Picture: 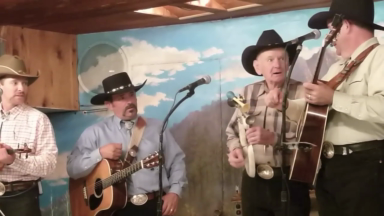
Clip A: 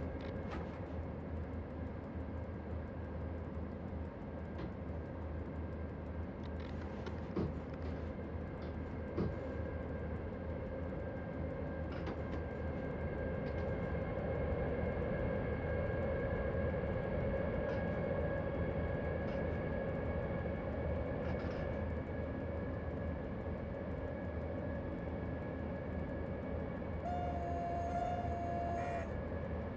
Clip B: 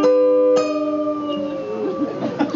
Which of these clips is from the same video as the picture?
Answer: B